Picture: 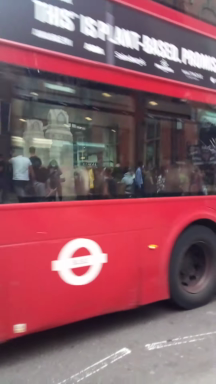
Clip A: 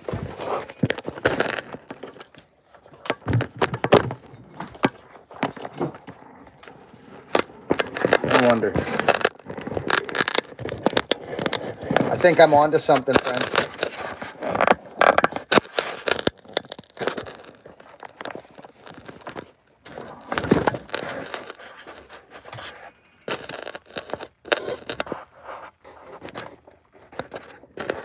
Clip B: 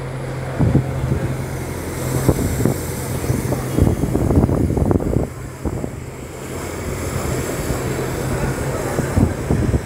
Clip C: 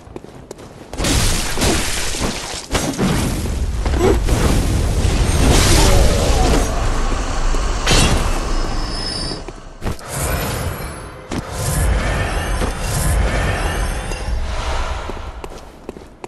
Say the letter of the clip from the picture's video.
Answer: B